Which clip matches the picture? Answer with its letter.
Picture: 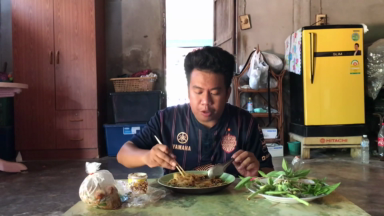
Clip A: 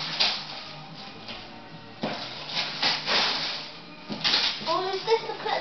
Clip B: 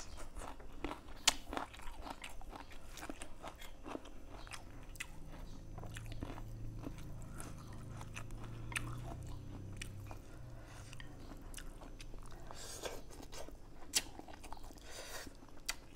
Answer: B